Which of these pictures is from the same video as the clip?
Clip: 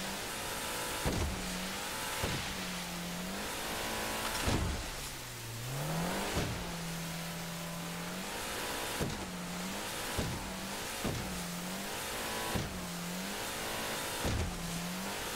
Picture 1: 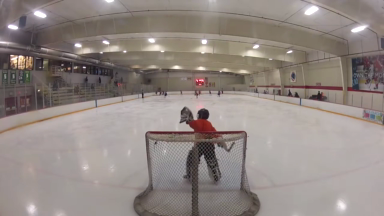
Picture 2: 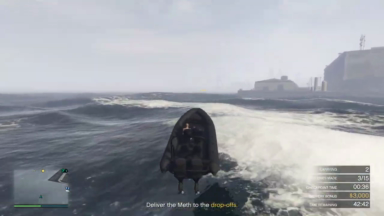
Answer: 2